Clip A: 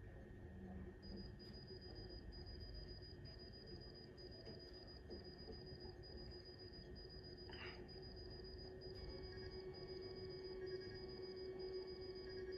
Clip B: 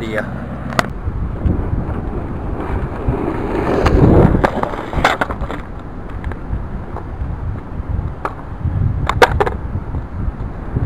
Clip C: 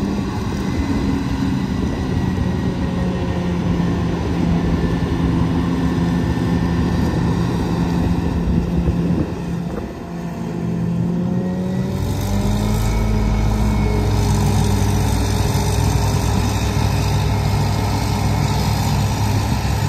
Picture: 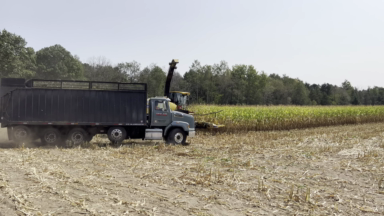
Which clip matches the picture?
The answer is C